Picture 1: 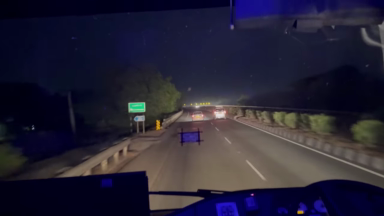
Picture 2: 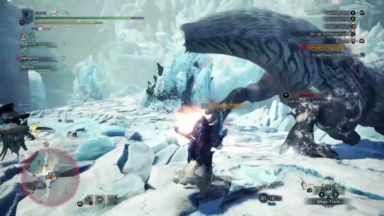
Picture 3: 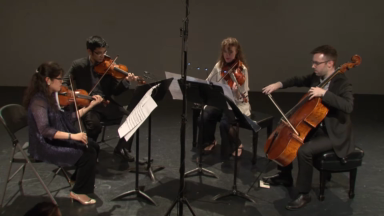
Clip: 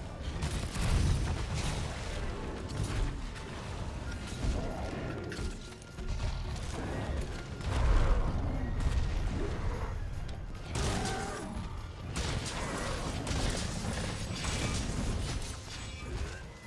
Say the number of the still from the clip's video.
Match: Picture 2